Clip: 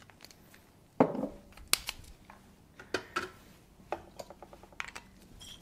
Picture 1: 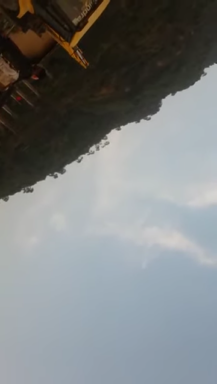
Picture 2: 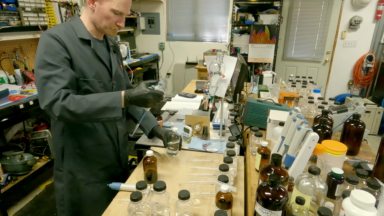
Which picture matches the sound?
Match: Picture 2